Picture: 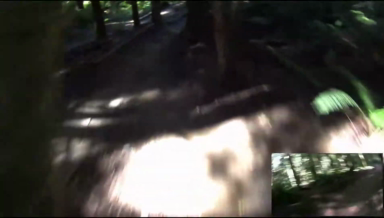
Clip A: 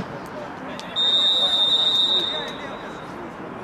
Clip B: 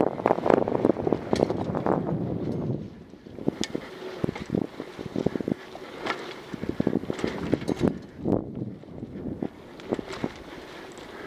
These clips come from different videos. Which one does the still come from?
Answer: B